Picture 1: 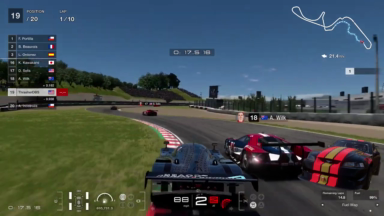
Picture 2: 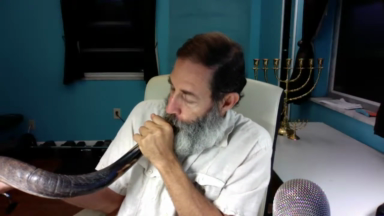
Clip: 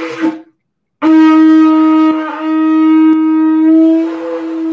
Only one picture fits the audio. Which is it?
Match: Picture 2